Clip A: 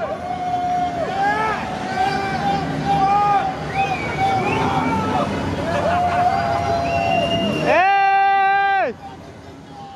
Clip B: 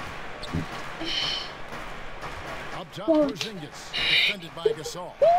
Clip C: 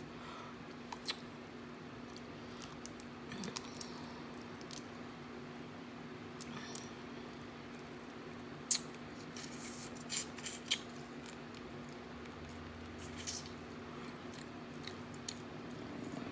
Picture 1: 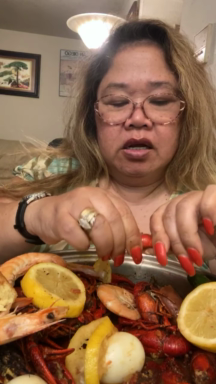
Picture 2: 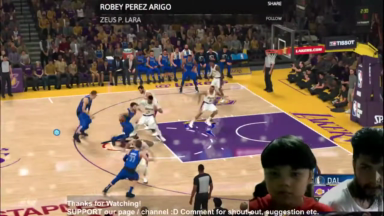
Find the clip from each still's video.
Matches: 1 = C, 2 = B